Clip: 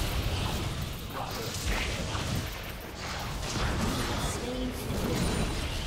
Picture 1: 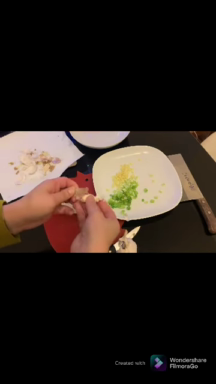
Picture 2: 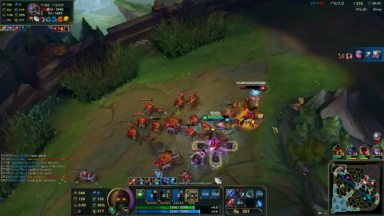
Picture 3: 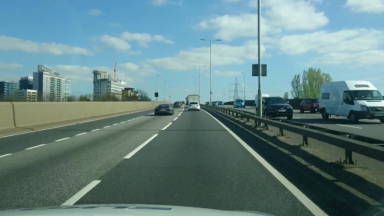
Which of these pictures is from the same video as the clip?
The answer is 2